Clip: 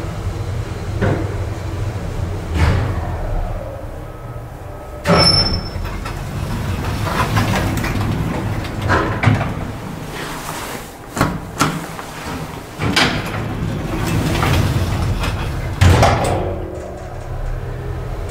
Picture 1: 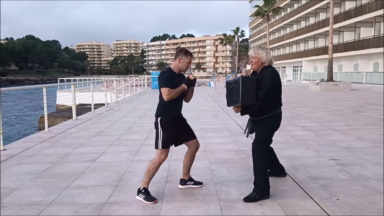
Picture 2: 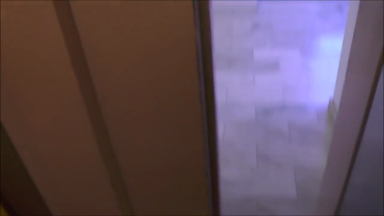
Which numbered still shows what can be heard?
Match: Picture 2